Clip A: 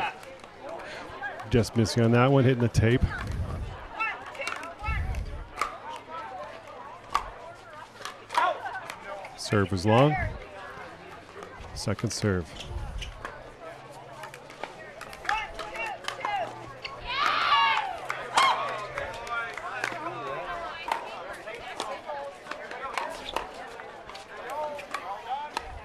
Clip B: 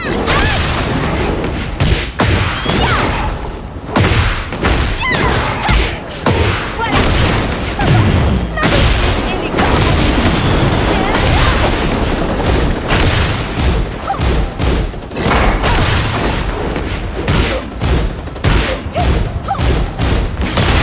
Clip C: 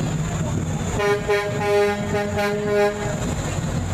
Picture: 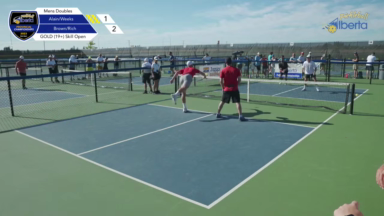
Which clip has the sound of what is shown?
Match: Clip A